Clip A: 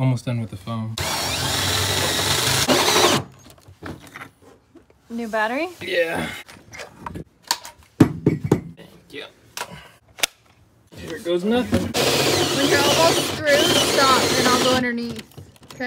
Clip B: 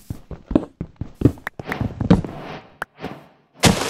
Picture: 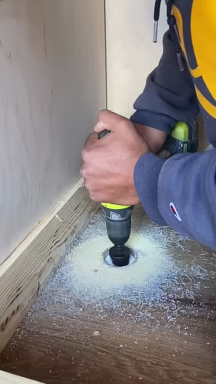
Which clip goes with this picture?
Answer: A